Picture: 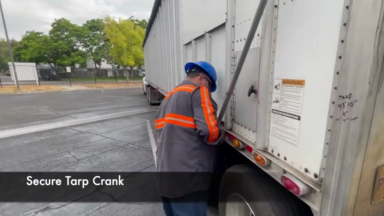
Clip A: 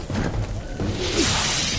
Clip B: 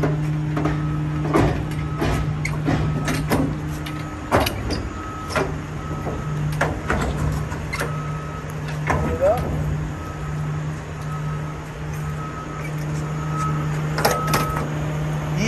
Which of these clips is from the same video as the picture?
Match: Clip B